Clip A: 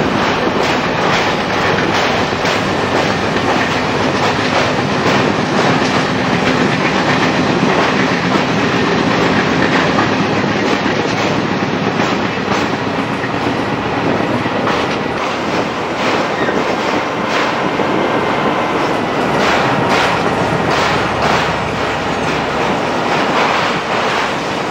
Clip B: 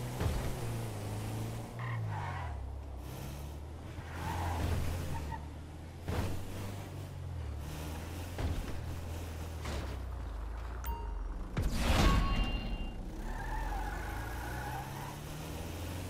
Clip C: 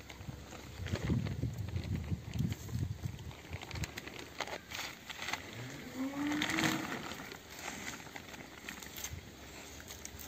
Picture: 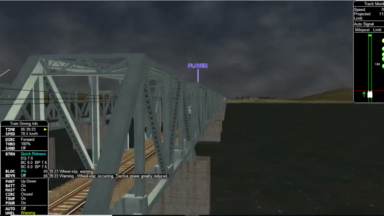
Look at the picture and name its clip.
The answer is A